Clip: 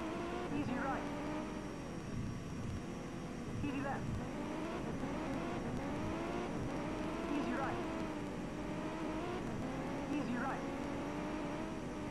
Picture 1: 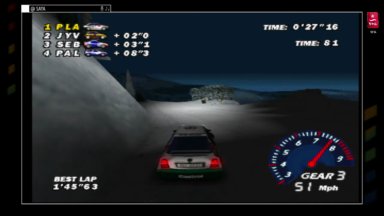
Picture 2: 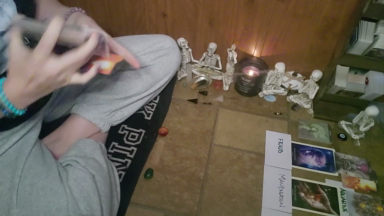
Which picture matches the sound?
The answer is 1